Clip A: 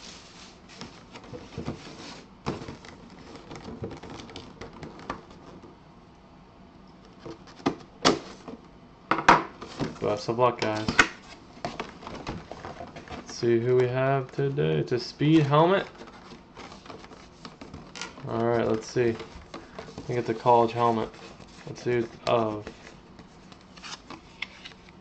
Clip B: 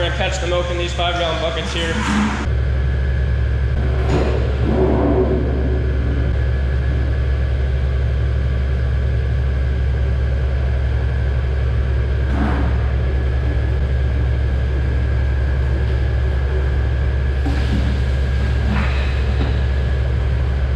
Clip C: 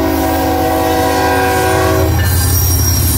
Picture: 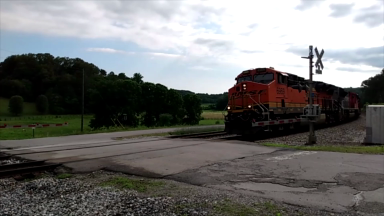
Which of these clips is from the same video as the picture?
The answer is C